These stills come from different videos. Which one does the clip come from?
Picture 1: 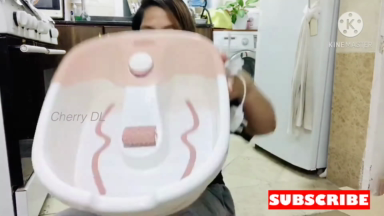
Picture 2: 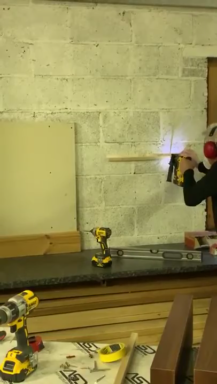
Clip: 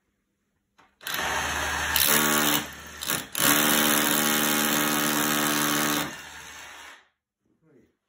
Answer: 2